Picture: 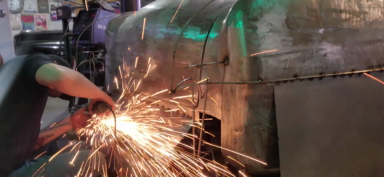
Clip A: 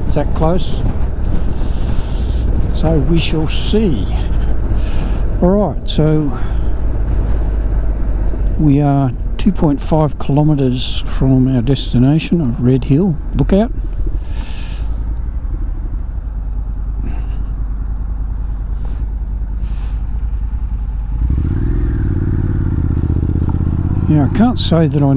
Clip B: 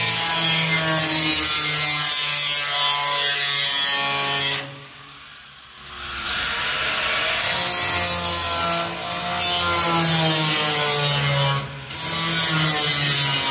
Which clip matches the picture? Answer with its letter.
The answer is B